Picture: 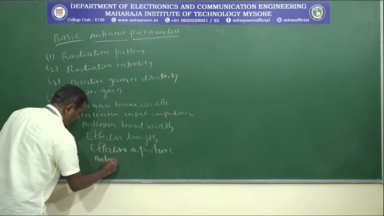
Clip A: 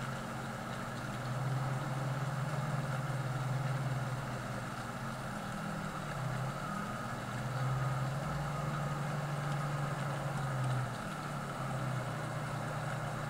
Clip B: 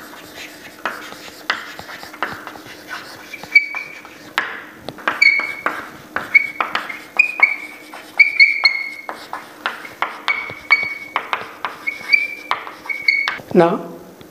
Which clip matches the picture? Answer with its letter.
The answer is B